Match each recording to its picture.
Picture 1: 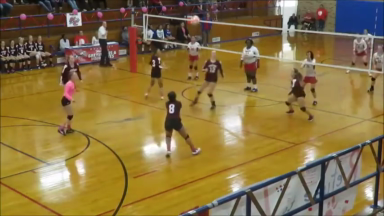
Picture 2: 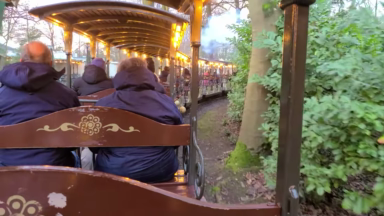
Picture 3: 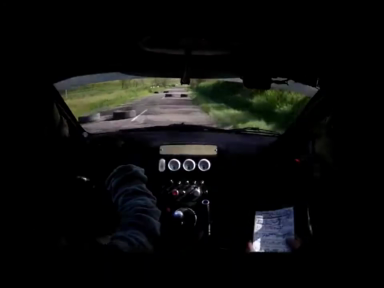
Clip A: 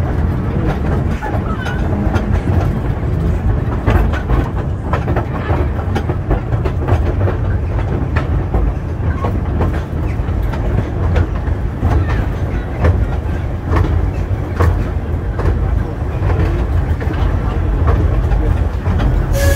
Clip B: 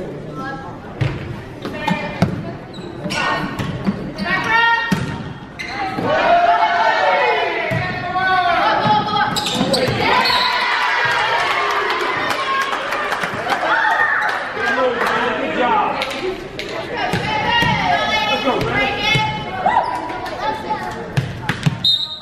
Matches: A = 2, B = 1